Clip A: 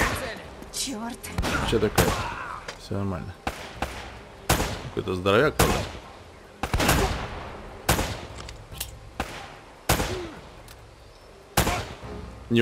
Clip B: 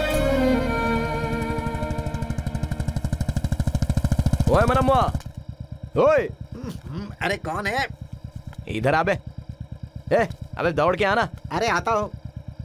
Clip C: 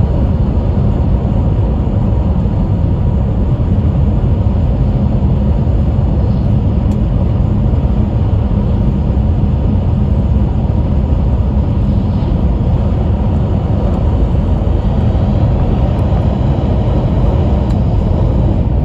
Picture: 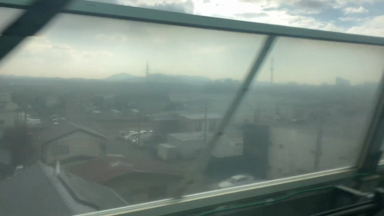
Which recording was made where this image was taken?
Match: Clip C